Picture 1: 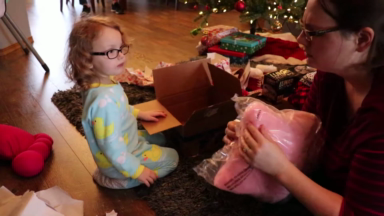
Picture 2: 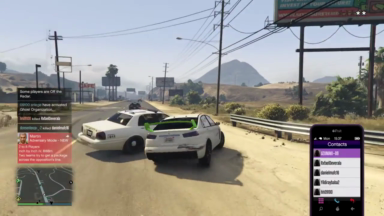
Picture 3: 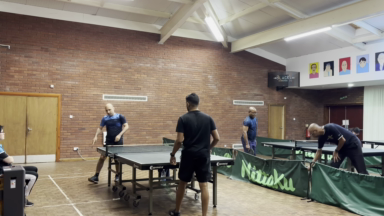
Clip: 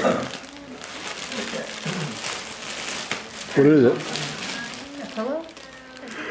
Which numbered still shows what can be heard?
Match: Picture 1